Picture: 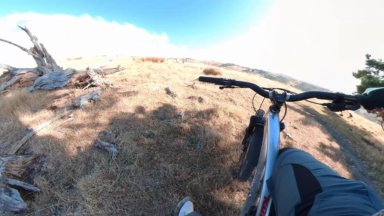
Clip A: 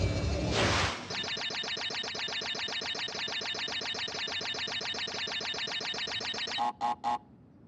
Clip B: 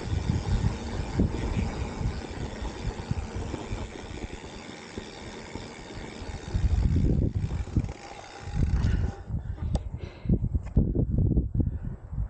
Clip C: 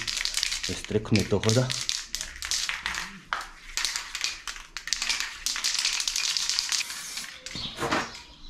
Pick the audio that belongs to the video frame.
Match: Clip B